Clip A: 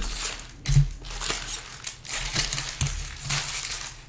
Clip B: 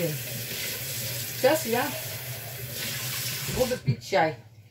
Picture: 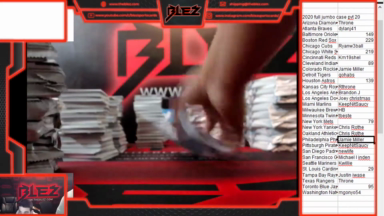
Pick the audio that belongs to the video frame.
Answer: A